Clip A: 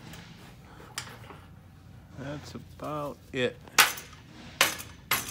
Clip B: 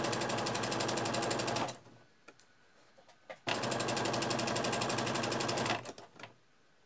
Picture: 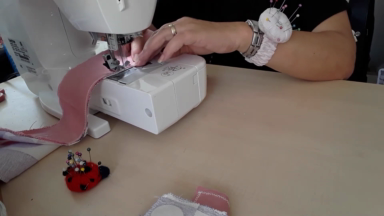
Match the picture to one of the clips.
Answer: B